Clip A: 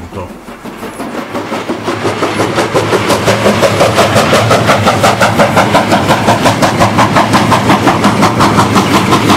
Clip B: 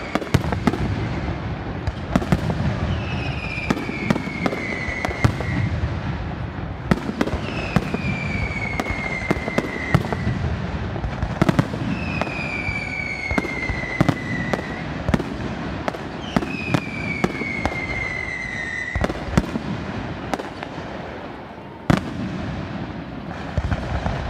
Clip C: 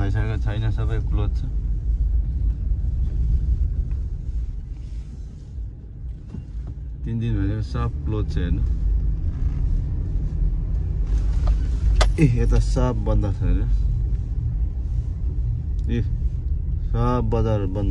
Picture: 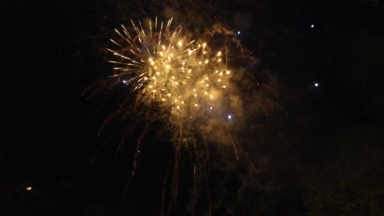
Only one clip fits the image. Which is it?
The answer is B